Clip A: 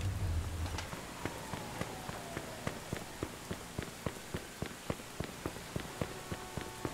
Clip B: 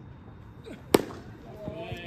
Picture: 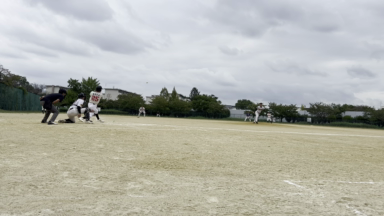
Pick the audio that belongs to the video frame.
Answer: B